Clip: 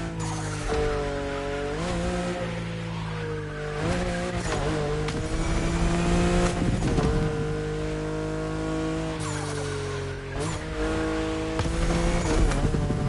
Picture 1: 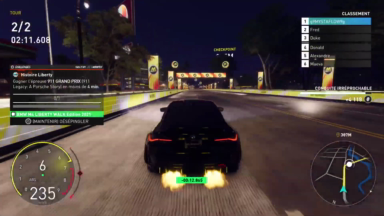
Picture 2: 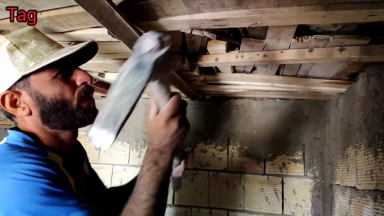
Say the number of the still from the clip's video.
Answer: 1